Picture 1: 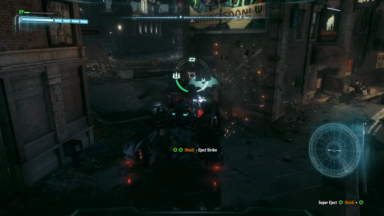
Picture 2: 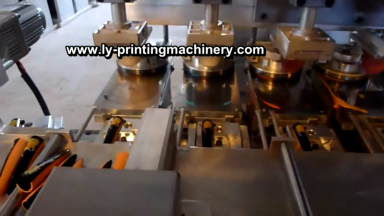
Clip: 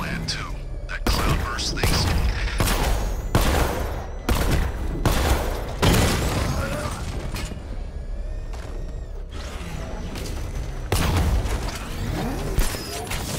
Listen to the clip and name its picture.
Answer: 1